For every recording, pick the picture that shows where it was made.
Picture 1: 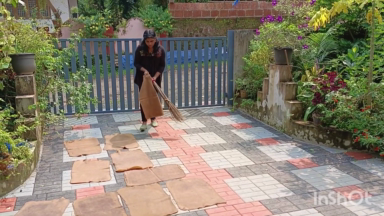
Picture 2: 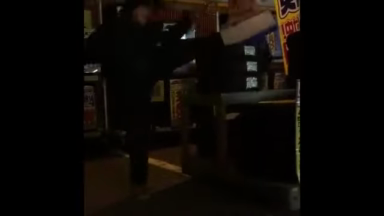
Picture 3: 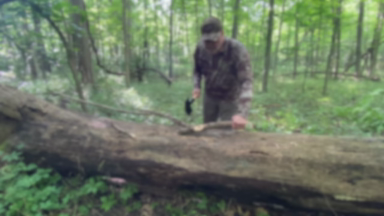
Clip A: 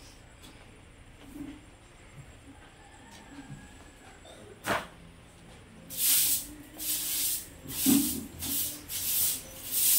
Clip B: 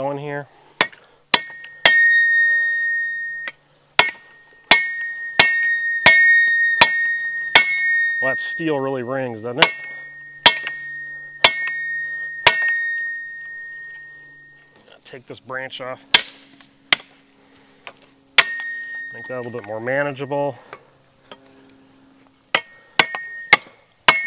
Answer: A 1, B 3